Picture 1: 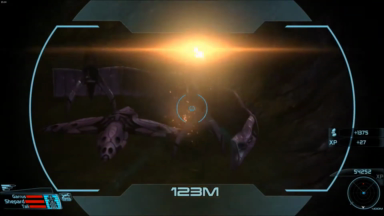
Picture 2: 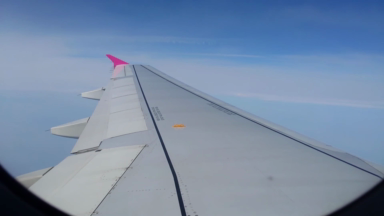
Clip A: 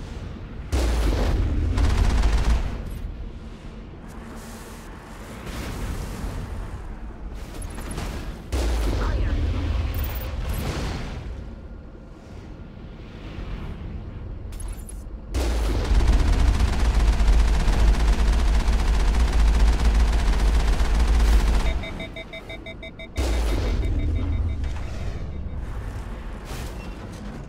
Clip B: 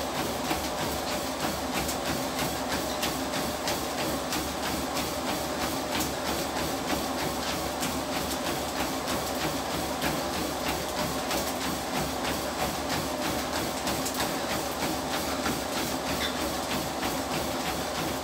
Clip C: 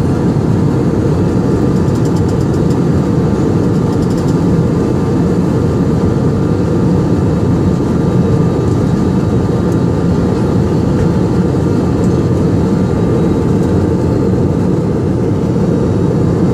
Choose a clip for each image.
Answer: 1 A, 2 C